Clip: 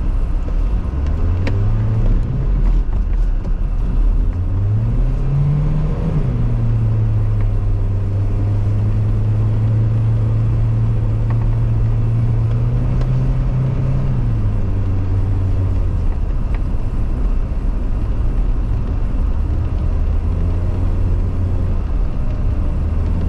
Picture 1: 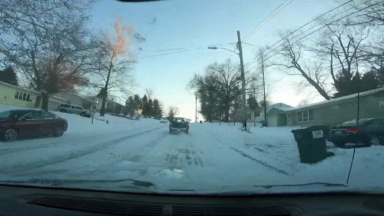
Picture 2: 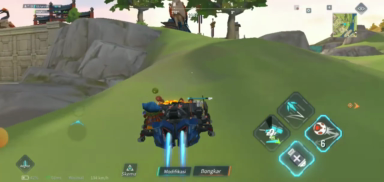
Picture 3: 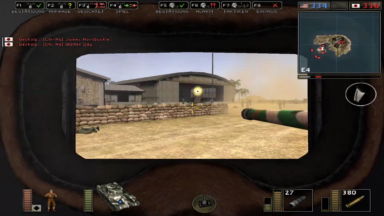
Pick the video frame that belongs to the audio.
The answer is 1